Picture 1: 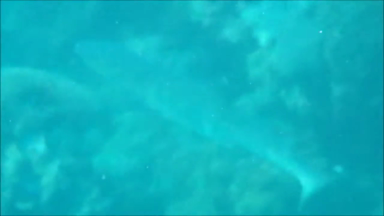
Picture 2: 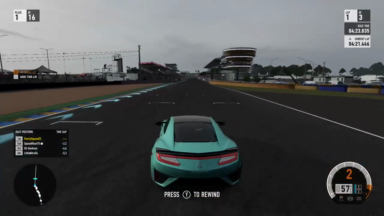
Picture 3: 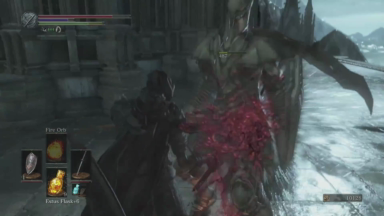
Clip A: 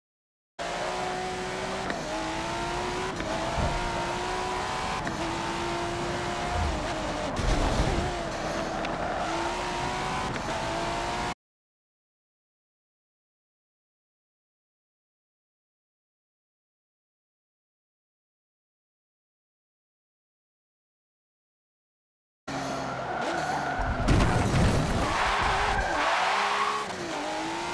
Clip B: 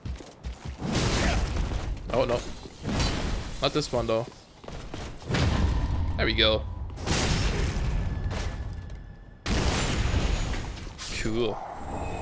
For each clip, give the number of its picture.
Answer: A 2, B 3